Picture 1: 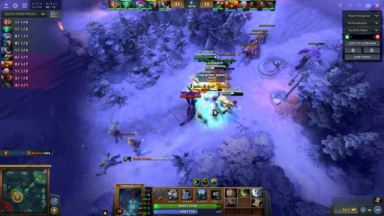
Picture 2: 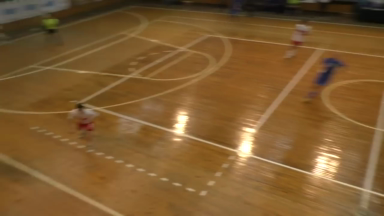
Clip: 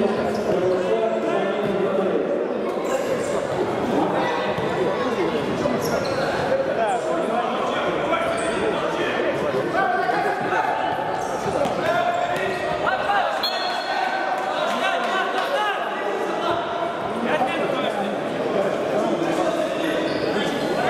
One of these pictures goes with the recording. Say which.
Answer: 2